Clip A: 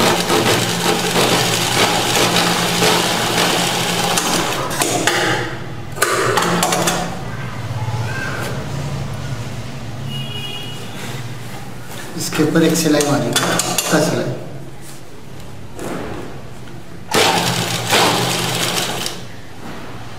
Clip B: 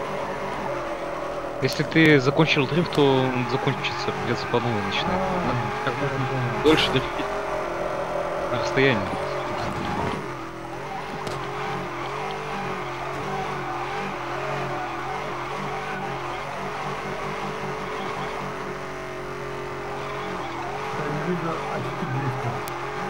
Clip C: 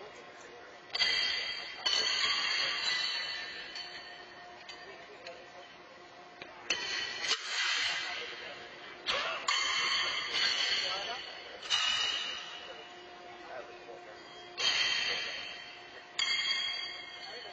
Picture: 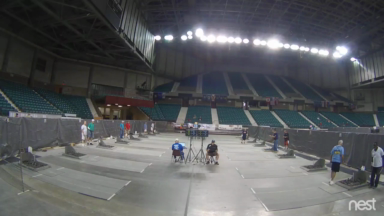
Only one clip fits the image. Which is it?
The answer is C